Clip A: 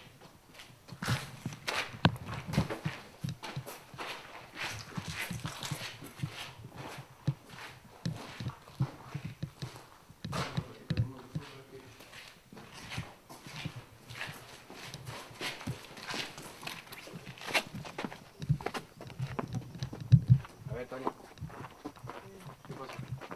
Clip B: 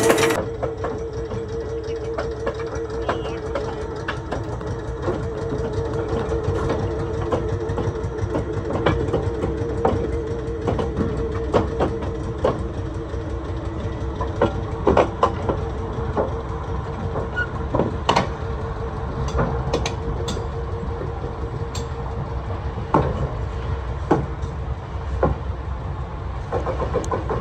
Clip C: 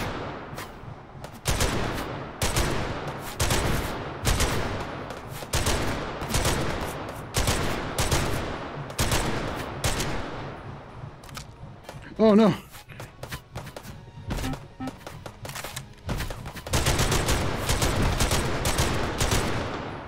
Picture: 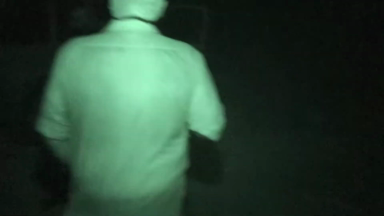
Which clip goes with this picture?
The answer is A